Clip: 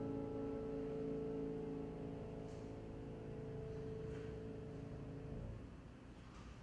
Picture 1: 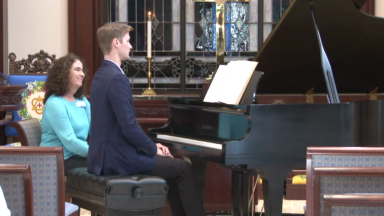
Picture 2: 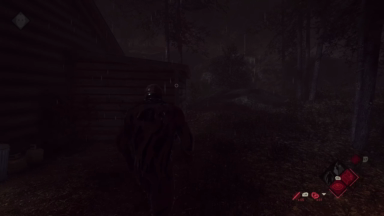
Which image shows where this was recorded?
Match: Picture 1